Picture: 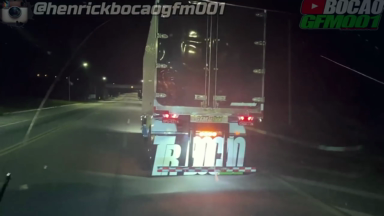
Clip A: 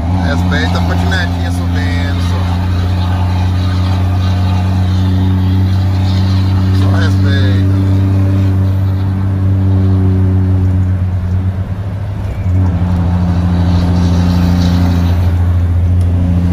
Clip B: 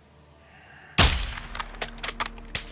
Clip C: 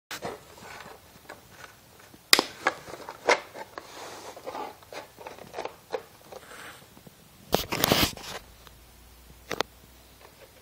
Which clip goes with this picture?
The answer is A